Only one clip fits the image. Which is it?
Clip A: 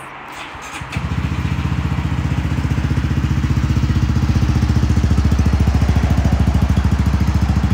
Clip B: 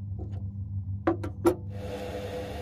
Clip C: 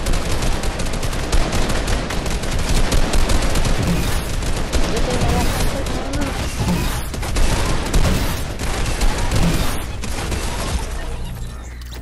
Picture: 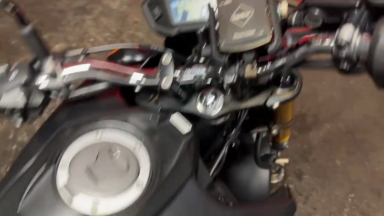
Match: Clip A